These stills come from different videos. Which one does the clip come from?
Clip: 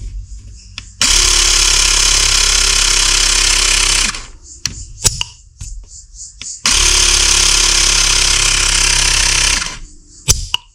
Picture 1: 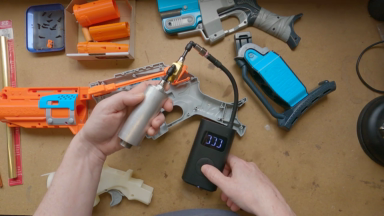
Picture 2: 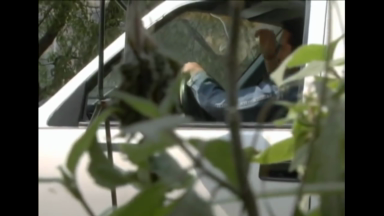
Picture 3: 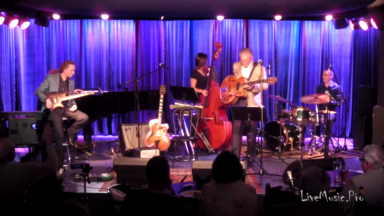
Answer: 1